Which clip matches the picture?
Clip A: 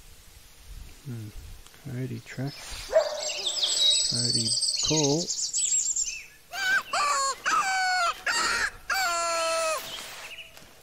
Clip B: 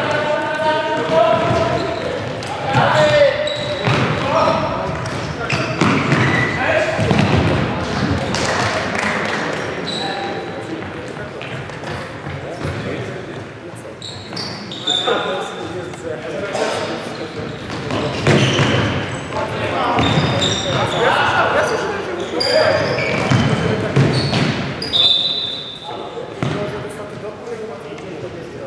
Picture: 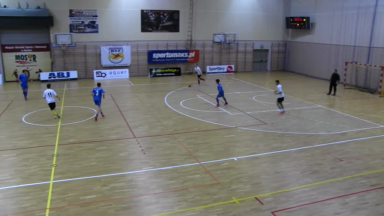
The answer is B